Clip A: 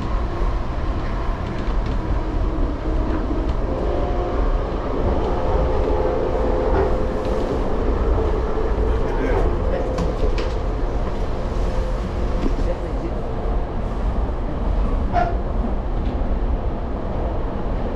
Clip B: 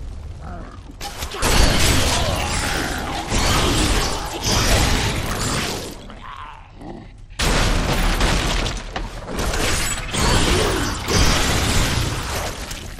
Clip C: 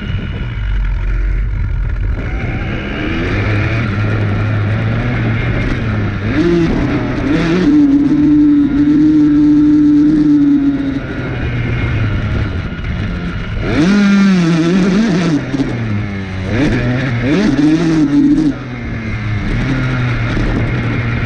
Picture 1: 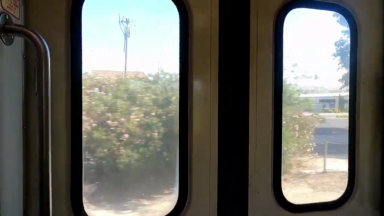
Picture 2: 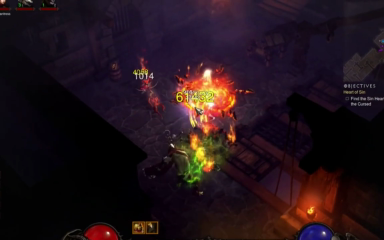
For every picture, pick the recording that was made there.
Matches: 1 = A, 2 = B